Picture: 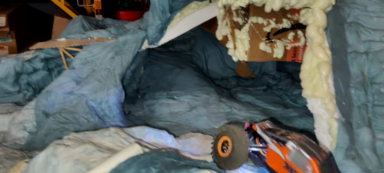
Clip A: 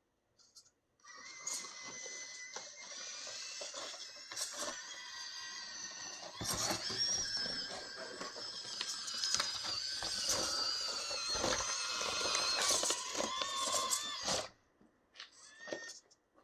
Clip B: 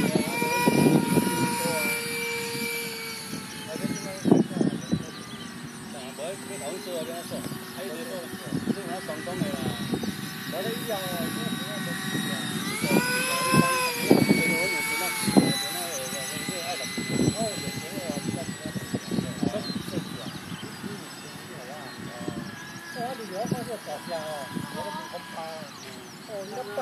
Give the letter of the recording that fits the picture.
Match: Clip A